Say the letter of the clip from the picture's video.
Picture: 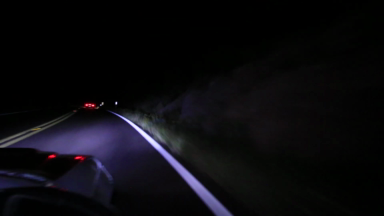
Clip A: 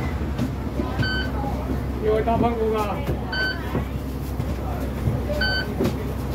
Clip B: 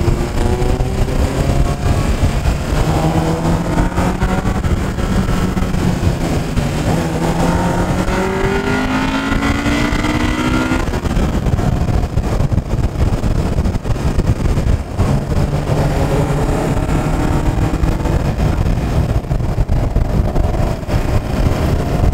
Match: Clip B